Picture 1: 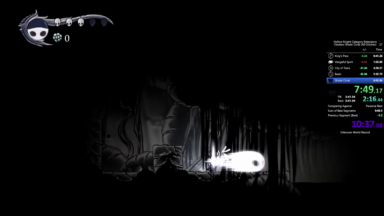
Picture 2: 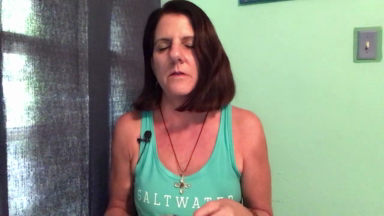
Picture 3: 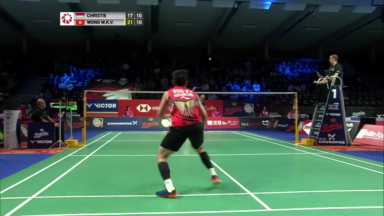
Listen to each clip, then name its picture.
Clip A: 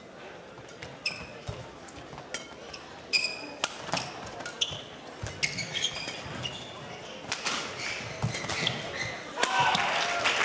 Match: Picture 3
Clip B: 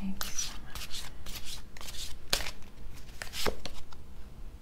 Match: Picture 2